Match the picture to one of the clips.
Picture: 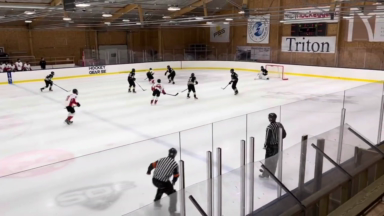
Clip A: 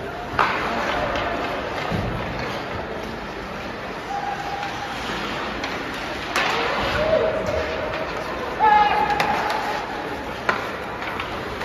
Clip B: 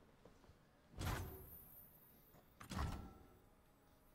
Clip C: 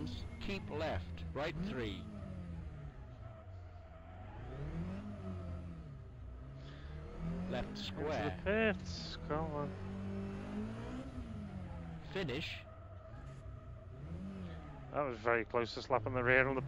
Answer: A